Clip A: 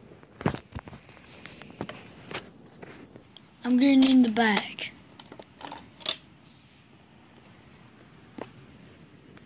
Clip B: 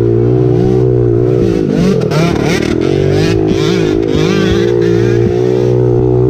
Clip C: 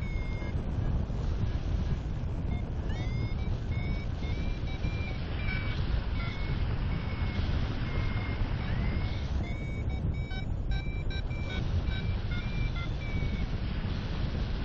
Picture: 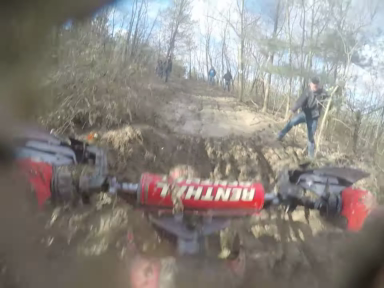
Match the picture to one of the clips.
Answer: B